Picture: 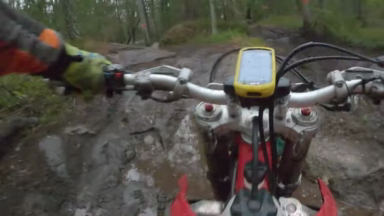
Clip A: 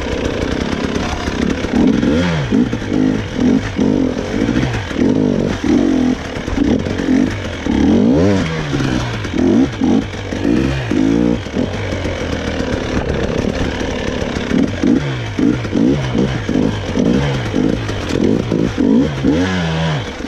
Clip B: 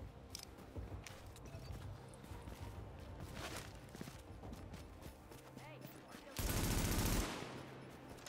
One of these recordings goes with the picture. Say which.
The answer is A